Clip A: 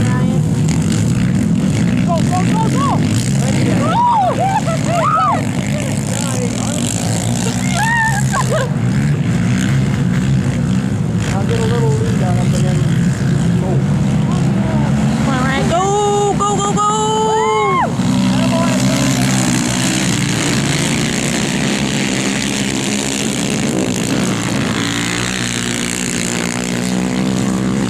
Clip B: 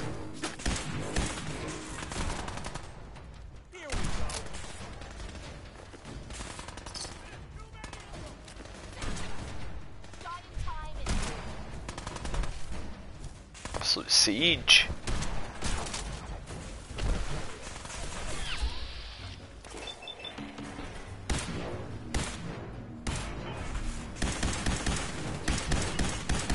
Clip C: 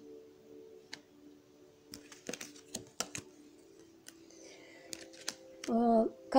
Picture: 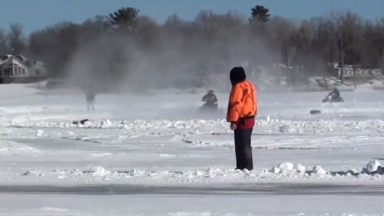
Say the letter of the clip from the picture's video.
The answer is A